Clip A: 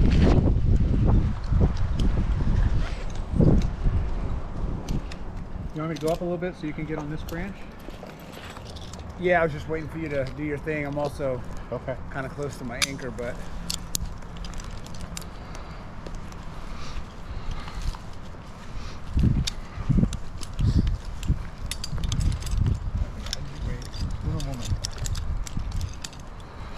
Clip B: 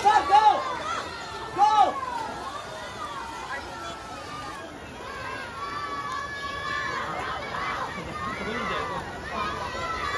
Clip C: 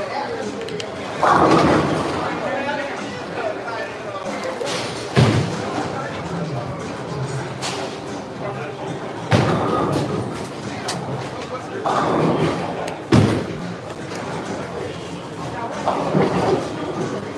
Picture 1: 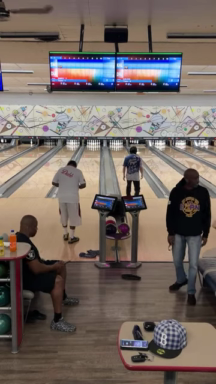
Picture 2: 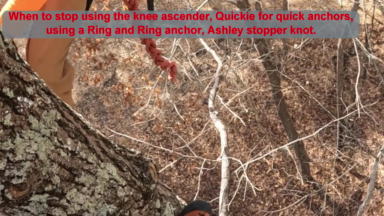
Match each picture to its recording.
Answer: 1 C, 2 A